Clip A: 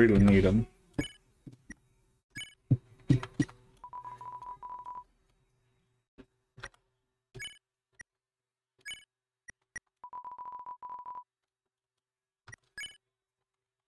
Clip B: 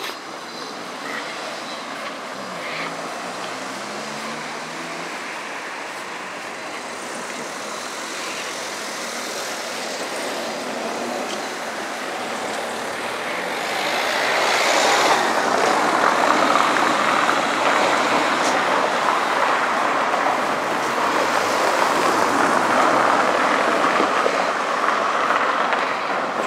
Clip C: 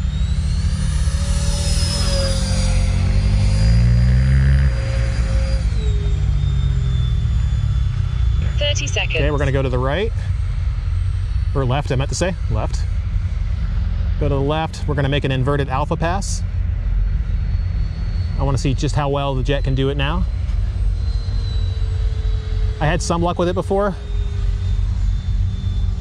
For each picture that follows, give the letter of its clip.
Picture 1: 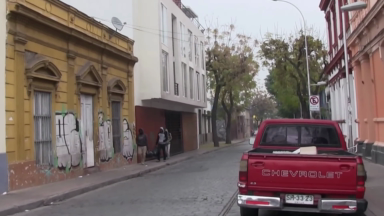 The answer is B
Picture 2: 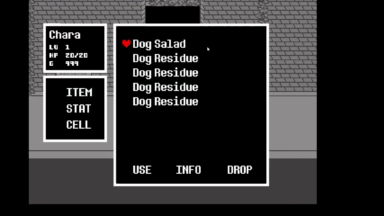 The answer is A